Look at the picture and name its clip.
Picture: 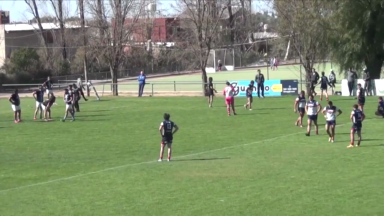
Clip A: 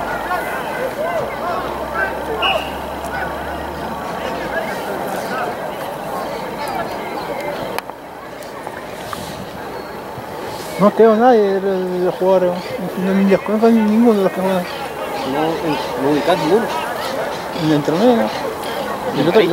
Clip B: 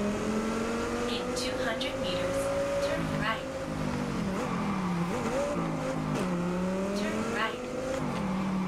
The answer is A